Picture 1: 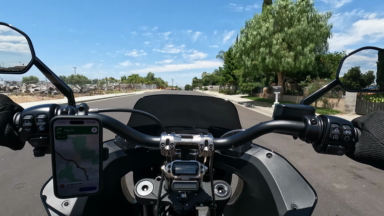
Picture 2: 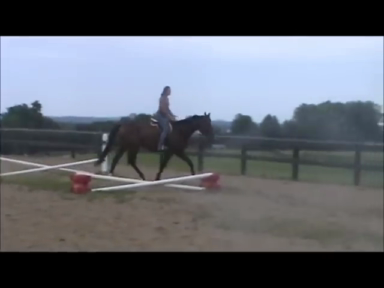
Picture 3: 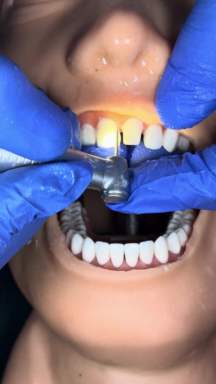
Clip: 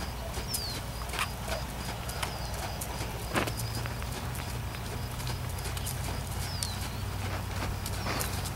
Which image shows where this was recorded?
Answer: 2